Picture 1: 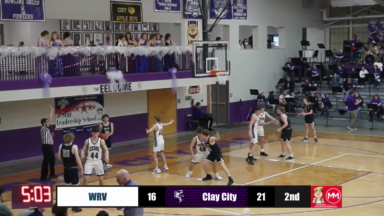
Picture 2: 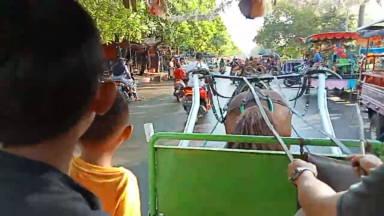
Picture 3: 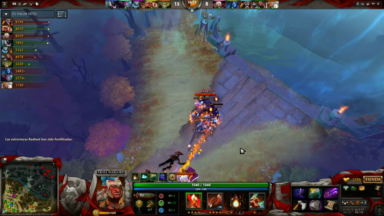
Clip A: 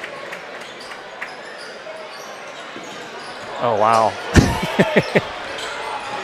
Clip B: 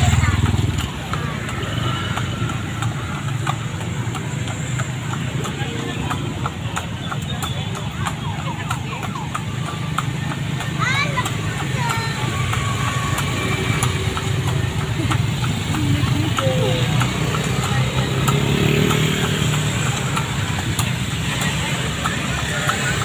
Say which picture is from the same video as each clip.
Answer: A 1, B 2